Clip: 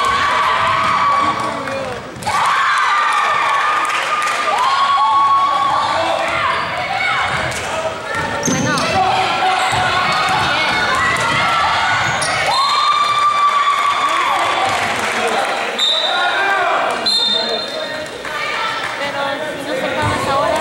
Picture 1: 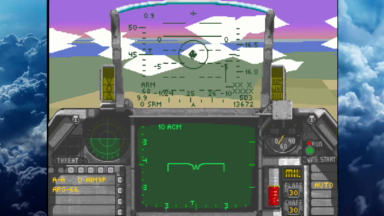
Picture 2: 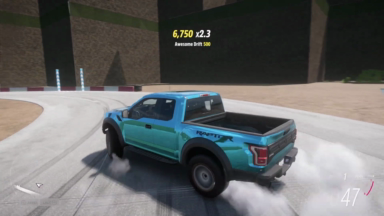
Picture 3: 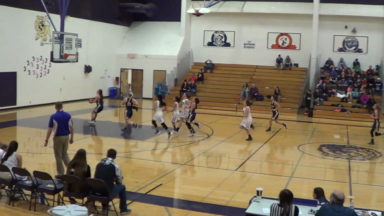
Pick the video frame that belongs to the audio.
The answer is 3